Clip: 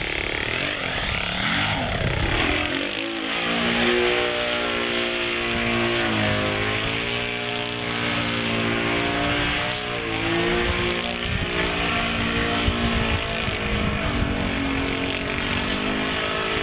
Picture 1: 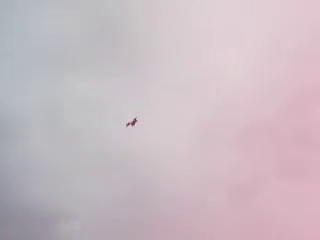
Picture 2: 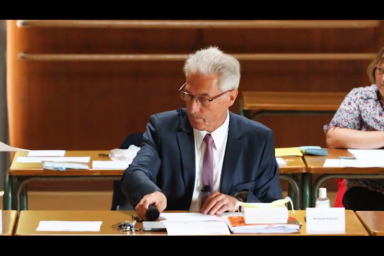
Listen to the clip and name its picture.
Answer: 1